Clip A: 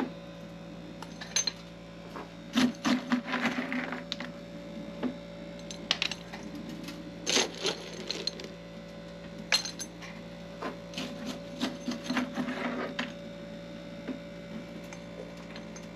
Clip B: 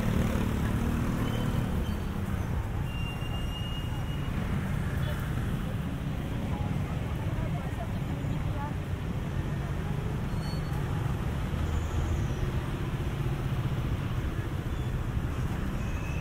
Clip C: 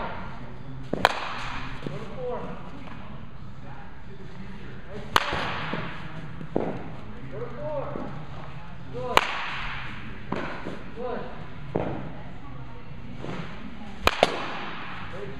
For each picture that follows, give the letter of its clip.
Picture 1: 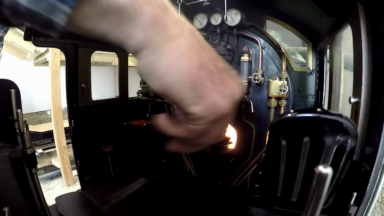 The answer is A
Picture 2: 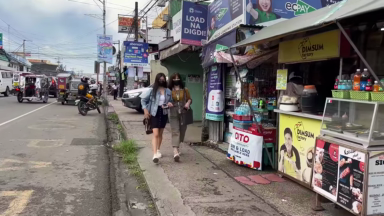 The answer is B